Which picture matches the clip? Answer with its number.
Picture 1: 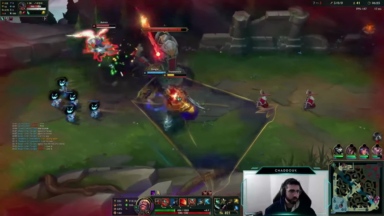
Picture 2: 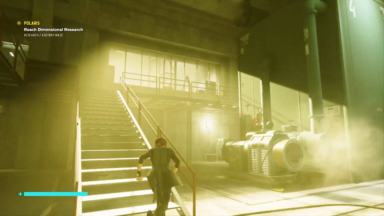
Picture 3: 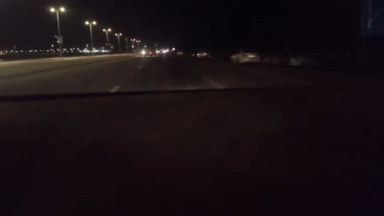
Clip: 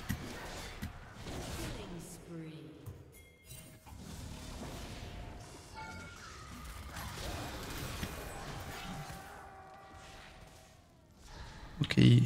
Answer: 1